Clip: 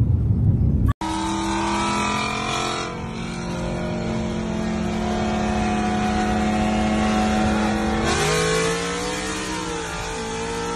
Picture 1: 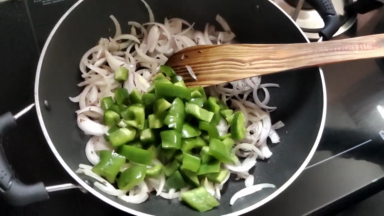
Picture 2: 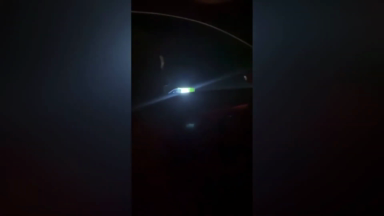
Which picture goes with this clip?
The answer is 2